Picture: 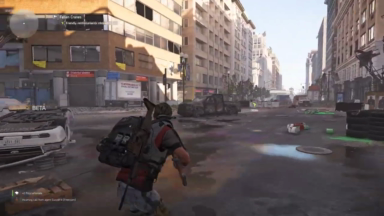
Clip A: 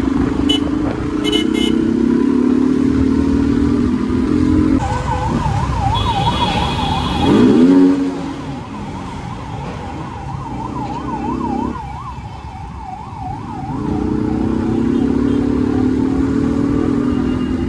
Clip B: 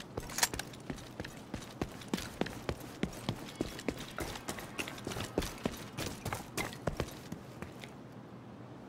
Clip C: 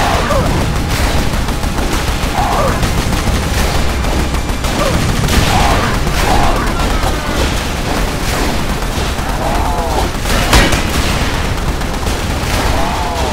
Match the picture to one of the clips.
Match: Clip B